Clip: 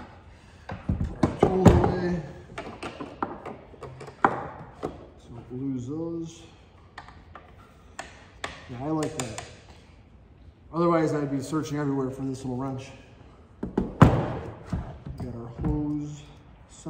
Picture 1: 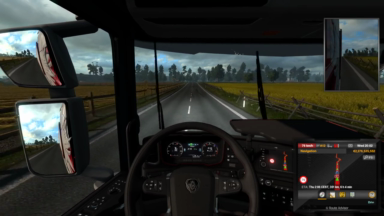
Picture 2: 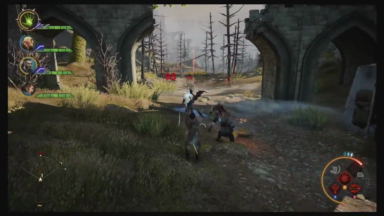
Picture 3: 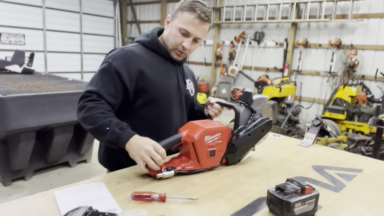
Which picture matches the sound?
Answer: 3